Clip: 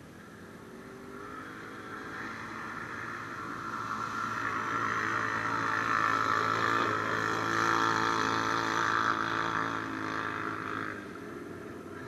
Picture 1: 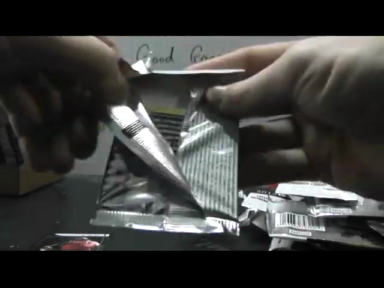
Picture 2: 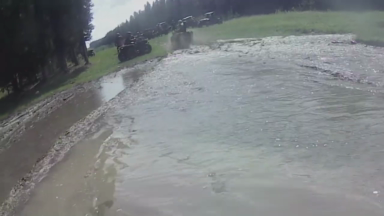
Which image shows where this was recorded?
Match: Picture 2